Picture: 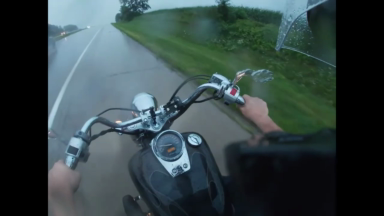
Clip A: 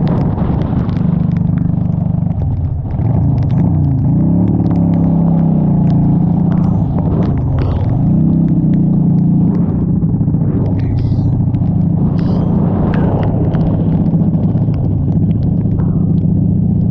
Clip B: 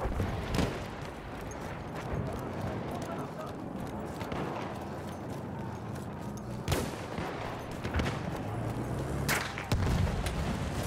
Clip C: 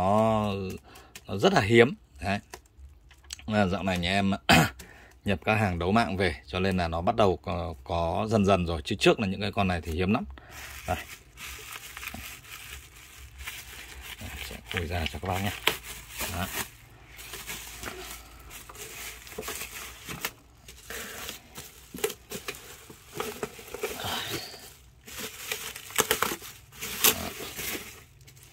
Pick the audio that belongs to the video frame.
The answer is A